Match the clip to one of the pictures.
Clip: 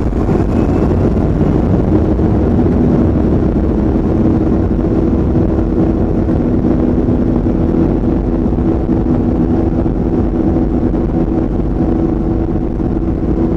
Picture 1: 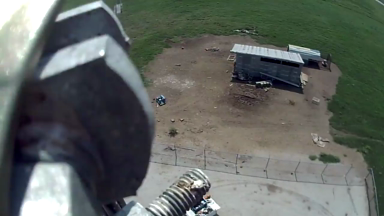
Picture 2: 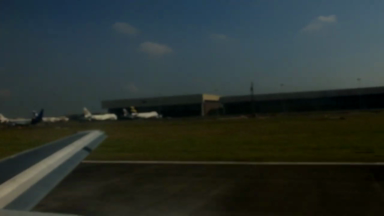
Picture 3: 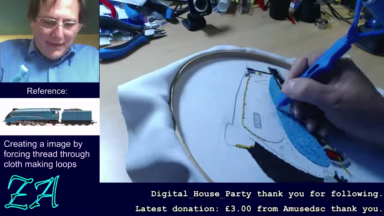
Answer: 2